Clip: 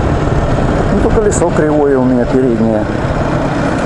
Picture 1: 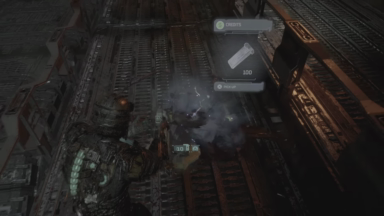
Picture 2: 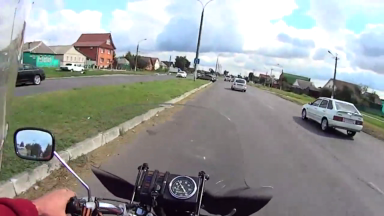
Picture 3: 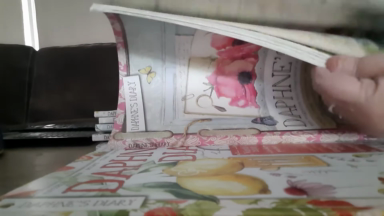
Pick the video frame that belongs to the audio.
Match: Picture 2